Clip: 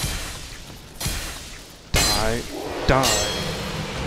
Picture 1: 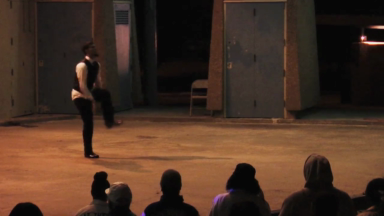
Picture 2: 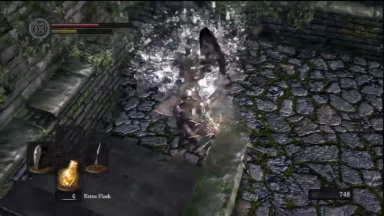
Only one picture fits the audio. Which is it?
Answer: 2